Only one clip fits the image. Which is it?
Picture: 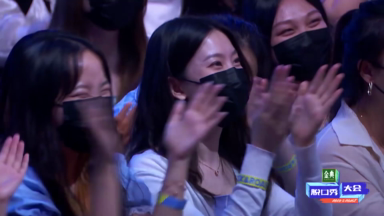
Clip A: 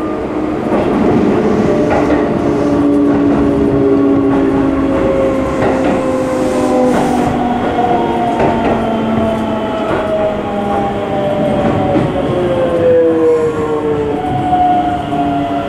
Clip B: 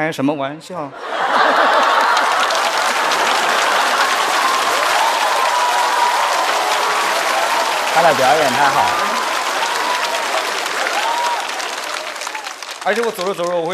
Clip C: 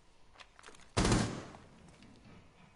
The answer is B